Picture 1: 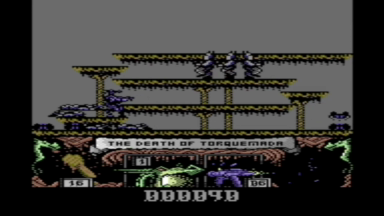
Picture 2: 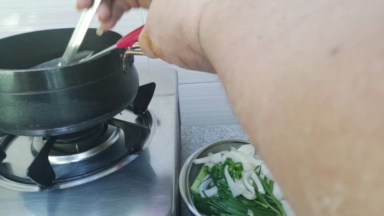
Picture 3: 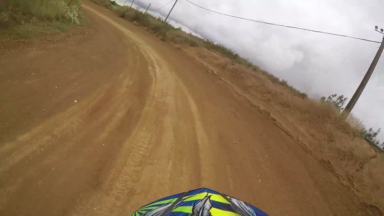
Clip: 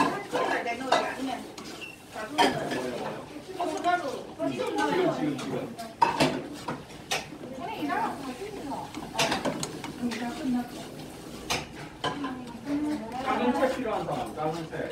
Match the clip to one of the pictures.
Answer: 2